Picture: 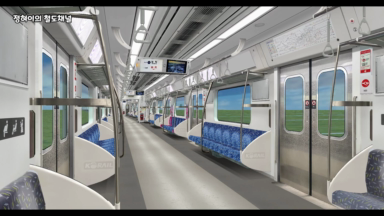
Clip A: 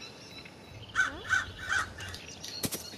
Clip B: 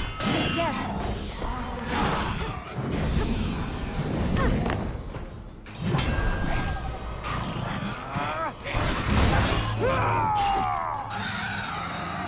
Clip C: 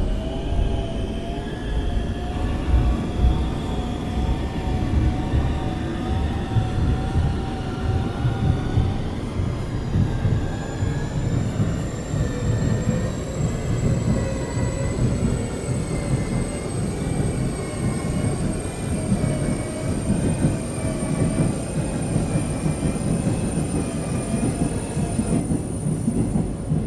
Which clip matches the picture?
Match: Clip C